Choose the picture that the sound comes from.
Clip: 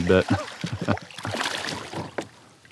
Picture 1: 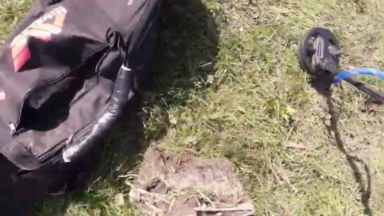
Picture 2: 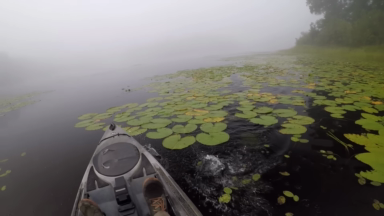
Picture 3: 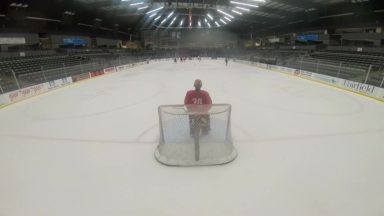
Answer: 2